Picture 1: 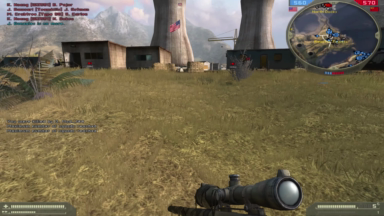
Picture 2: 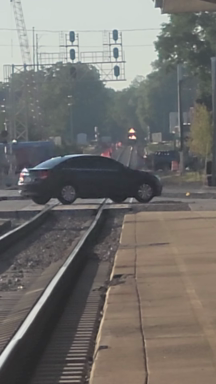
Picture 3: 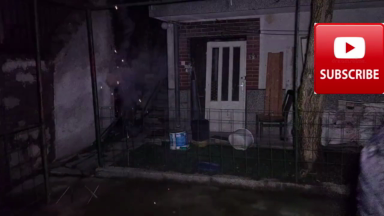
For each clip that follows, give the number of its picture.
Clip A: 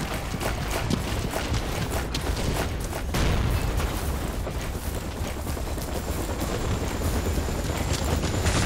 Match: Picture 1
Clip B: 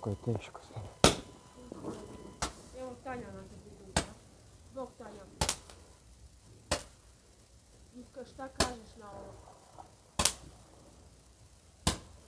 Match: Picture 3